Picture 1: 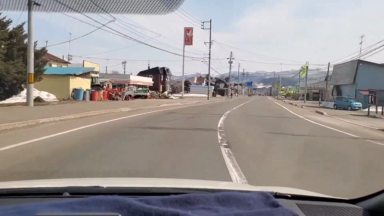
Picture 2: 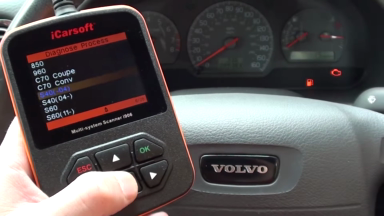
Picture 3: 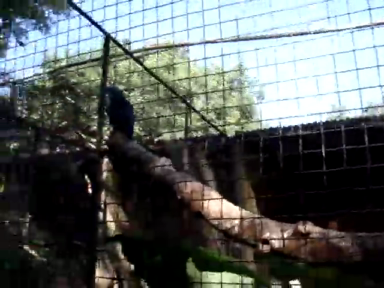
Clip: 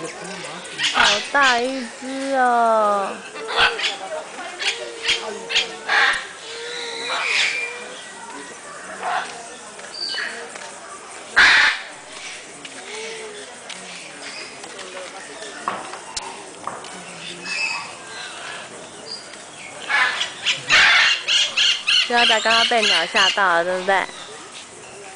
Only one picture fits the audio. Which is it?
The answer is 3